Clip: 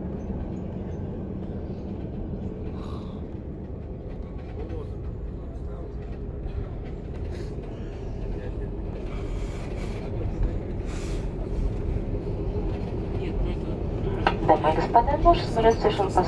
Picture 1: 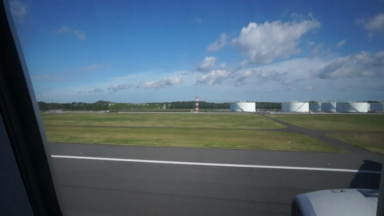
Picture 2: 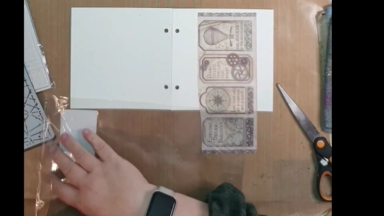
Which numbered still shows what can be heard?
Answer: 1